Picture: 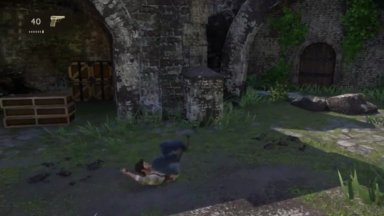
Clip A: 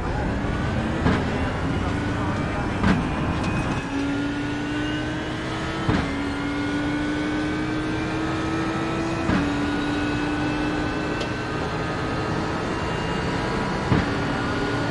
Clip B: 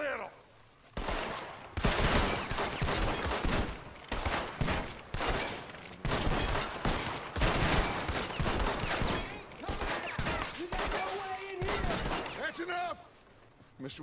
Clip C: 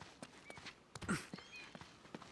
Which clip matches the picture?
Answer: C